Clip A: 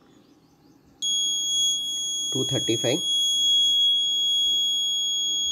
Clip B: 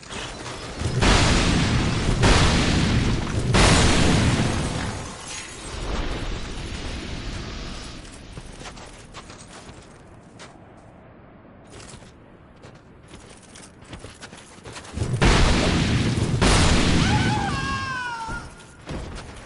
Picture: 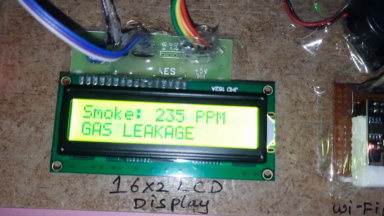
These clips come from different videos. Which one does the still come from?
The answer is A